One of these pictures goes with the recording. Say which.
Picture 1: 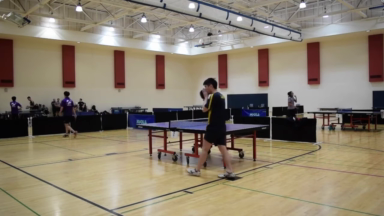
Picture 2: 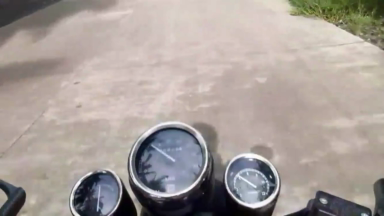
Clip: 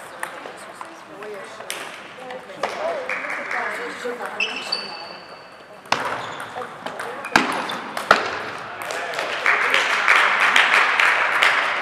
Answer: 1